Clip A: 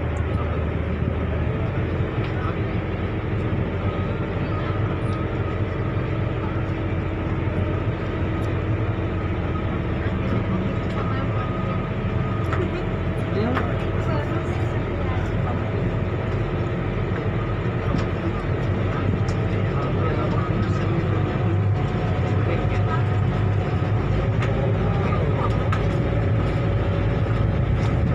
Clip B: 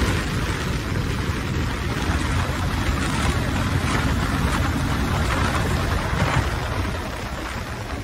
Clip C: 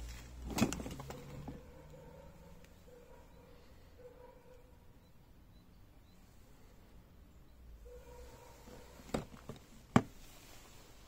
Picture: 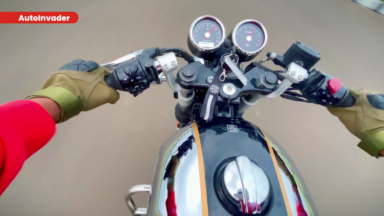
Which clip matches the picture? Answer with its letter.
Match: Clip B